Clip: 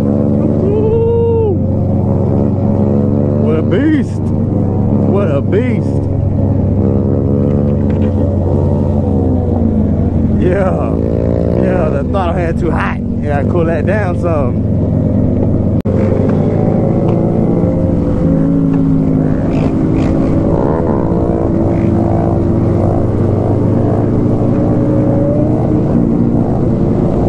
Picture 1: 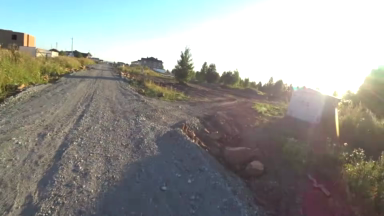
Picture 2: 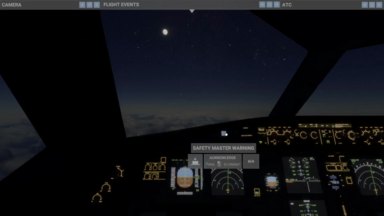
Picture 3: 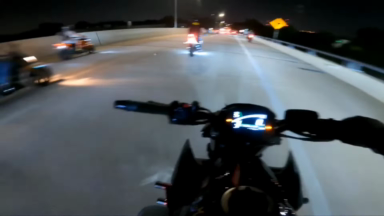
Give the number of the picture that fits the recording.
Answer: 3